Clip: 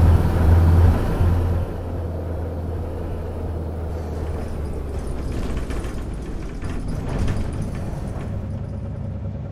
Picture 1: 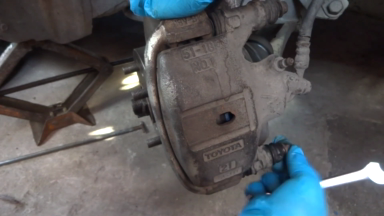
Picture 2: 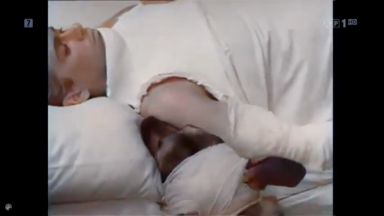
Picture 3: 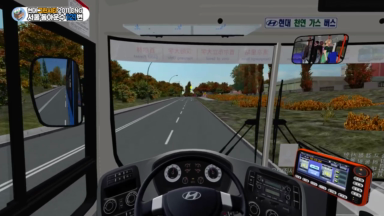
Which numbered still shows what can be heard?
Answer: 3